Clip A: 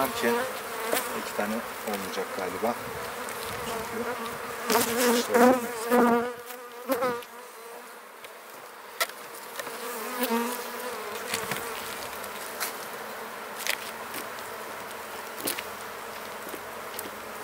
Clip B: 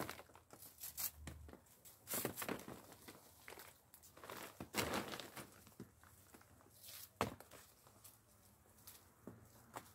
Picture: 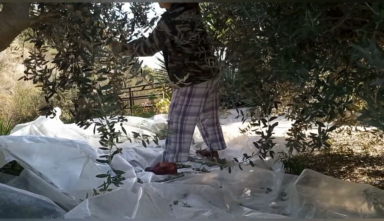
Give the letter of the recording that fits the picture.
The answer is B